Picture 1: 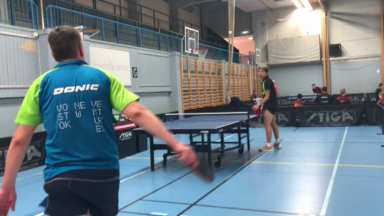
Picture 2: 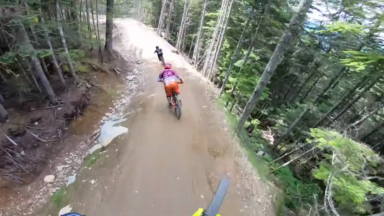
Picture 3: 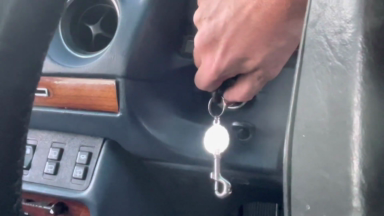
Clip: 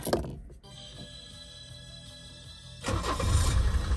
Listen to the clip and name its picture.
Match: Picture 3